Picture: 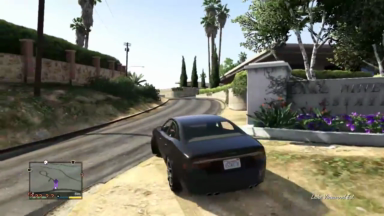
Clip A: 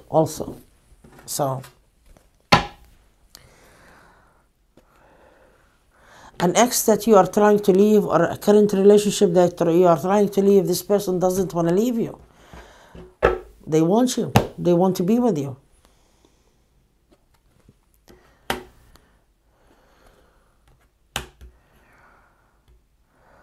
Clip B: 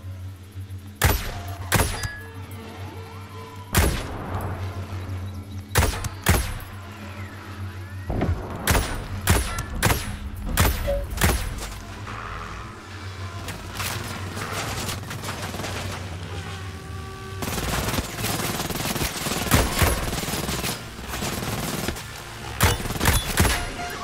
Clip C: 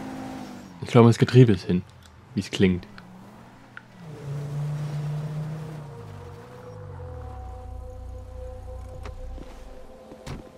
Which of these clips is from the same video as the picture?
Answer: C